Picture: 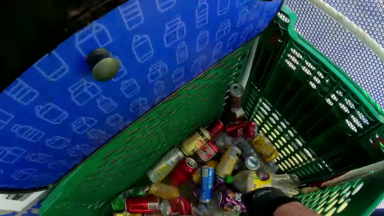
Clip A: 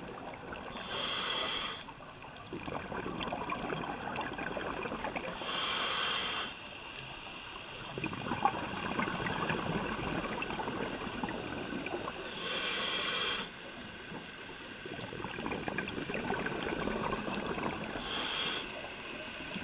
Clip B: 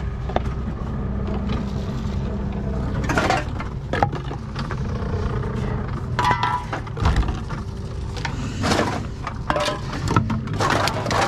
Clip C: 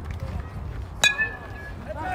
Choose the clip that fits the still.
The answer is B